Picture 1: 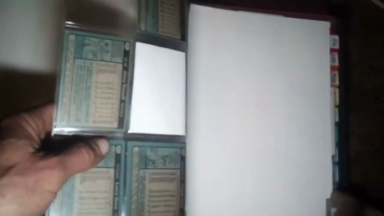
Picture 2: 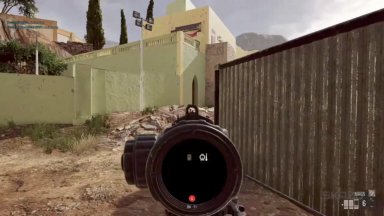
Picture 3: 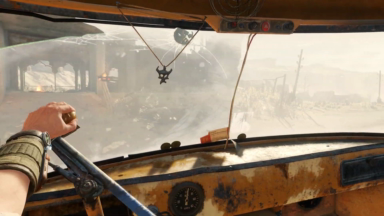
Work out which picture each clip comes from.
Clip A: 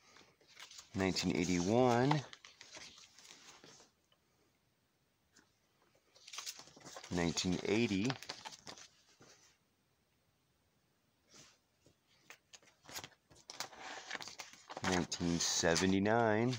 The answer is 1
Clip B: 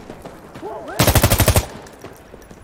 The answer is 2